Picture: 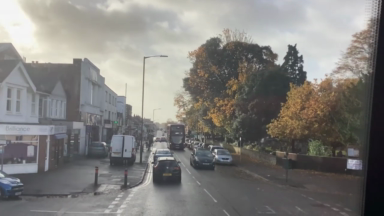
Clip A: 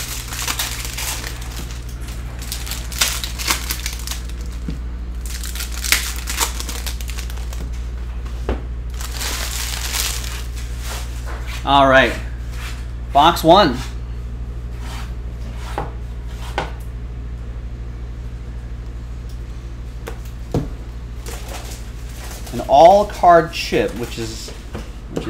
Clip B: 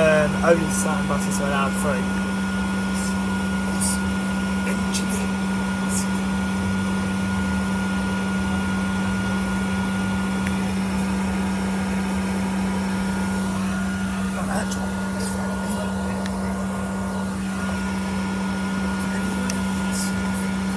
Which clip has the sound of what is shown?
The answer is B